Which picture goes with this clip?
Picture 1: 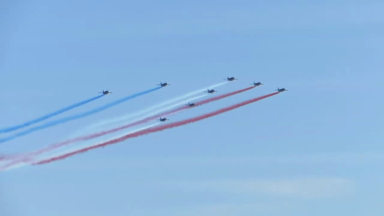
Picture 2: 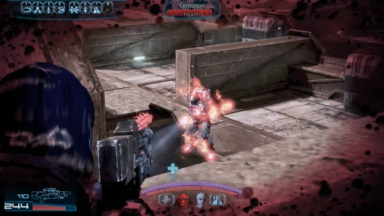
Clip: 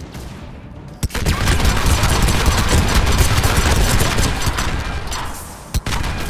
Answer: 2